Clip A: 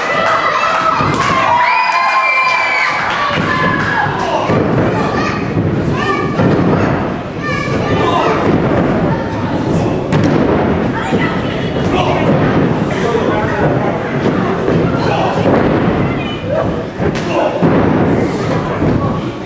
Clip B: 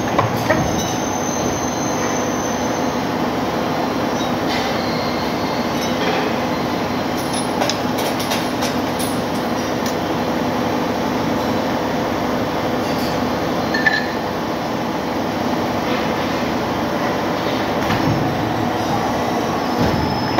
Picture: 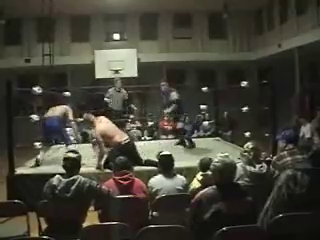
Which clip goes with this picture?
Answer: A